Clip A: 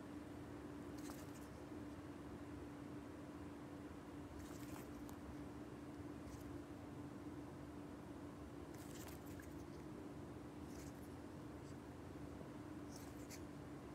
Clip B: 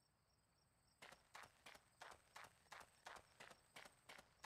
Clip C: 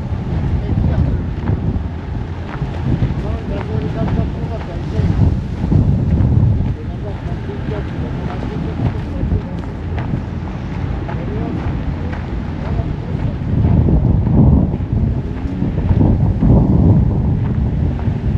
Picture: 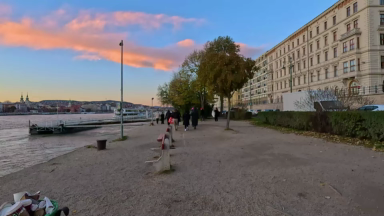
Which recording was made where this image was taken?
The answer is C